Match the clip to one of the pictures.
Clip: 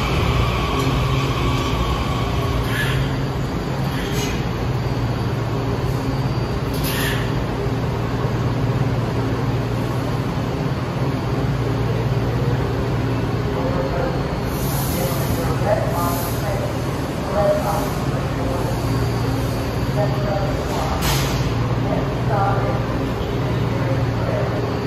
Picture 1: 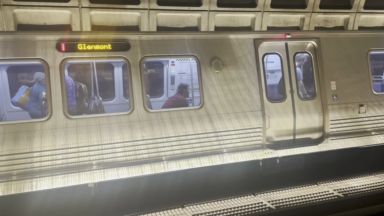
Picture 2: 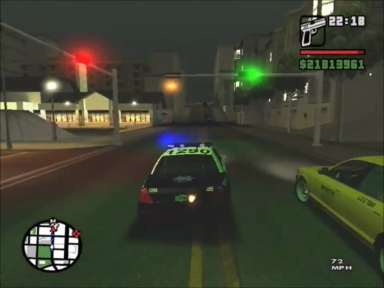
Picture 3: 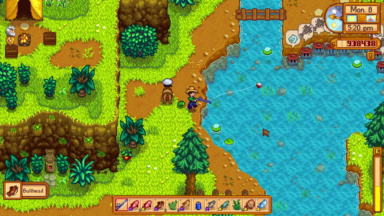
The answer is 1